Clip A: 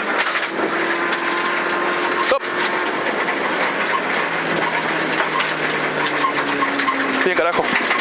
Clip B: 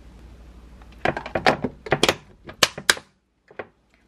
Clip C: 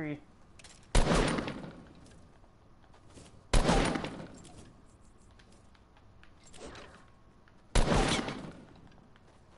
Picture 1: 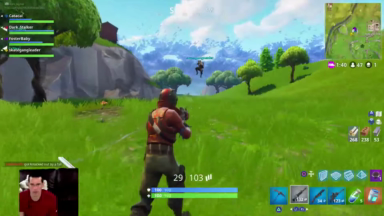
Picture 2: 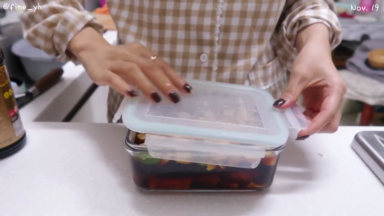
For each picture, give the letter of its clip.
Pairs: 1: C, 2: B